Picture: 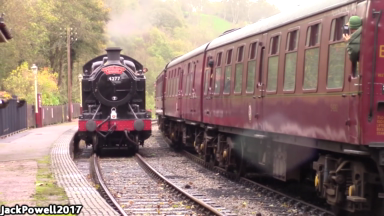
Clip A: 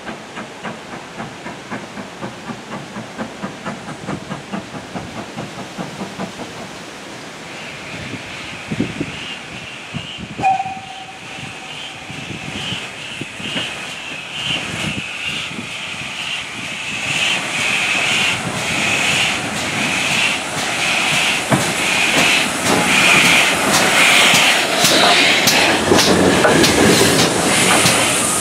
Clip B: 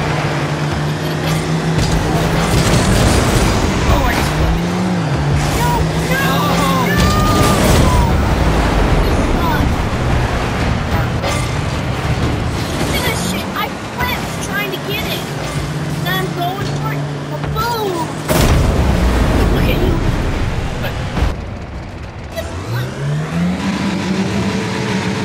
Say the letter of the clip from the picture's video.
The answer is A